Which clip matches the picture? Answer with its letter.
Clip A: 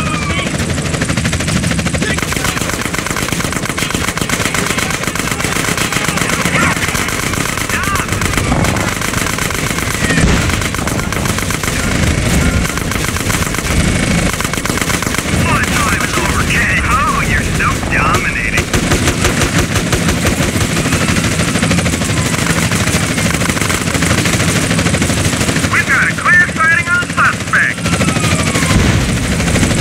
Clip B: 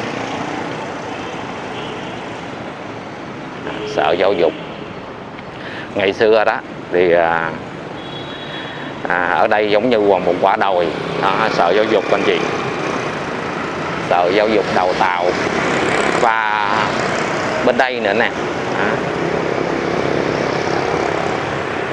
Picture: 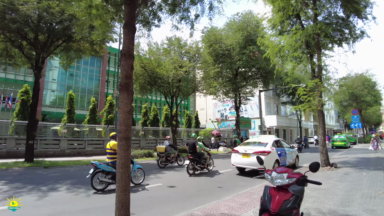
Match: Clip B